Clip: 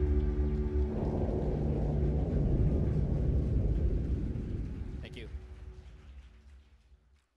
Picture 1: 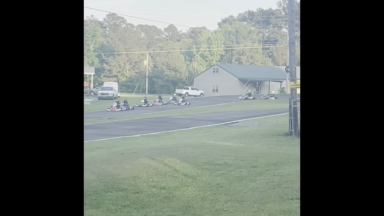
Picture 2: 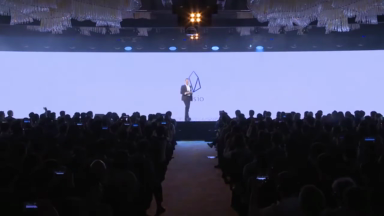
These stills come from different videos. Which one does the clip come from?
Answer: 2